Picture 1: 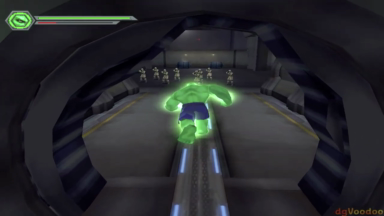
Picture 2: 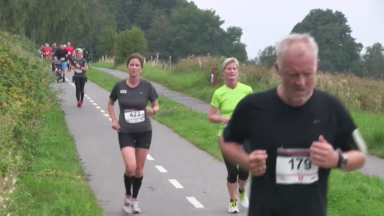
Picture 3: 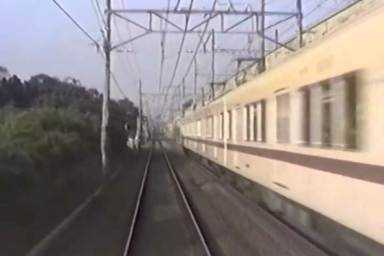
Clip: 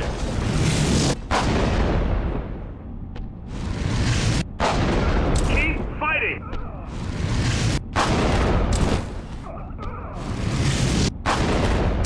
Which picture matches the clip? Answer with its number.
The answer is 1